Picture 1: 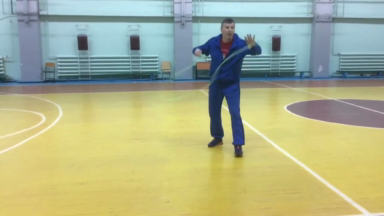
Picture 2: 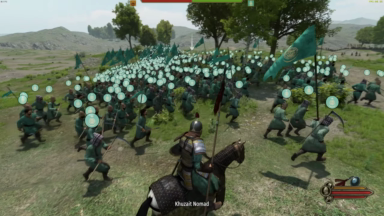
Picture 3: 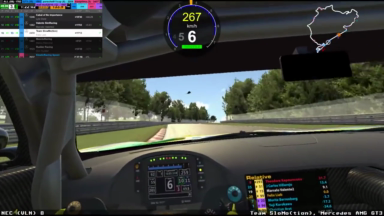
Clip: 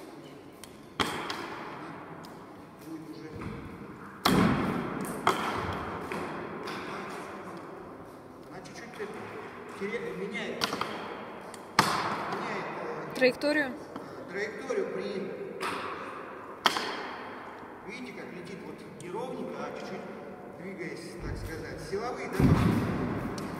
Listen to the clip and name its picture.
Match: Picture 1